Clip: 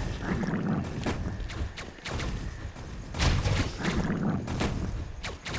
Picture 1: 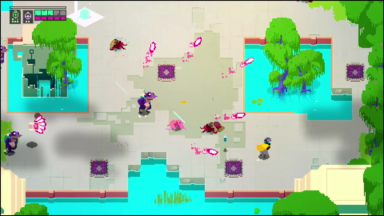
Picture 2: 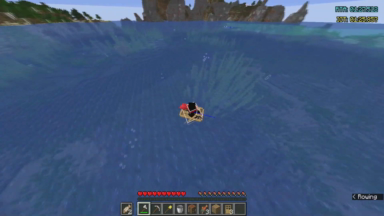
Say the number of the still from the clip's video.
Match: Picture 1